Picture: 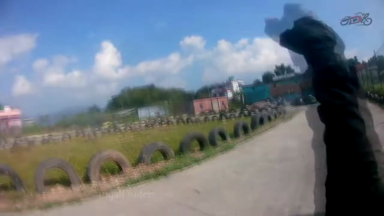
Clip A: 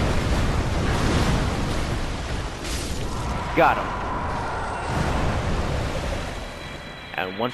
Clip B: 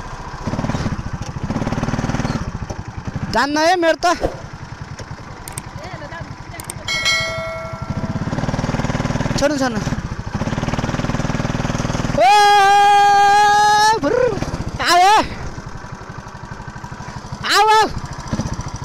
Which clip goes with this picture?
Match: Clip B